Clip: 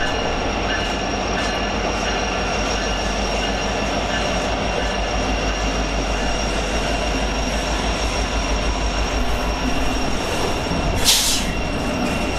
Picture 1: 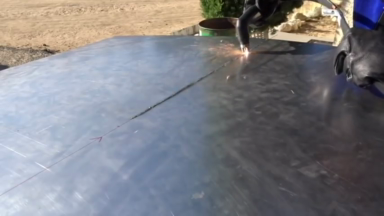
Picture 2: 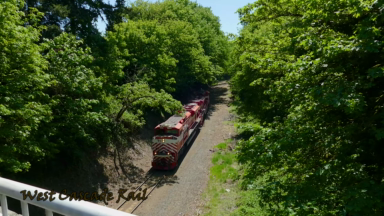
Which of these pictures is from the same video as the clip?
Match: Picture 2